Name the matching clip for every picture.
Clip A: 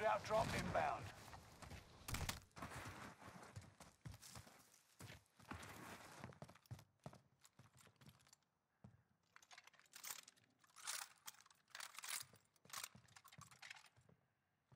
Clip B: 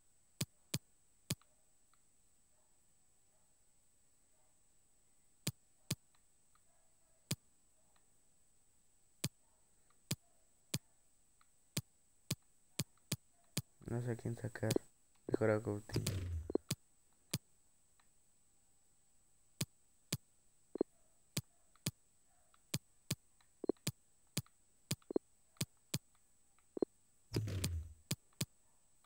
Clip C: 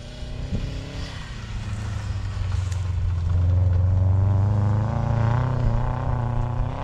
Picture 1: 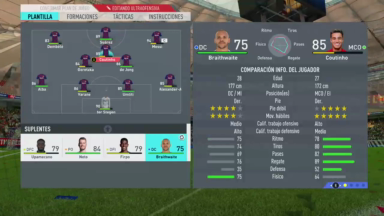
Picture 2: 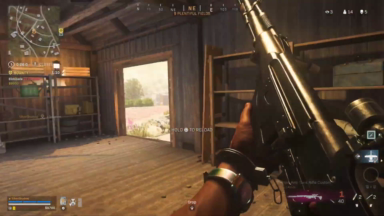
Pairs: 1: B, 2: A